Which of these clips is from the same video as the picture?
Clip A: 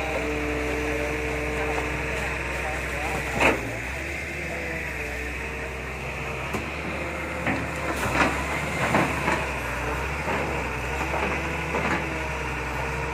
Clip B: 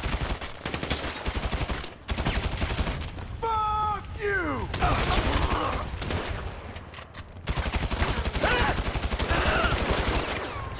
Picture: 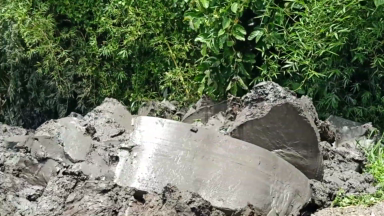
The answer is A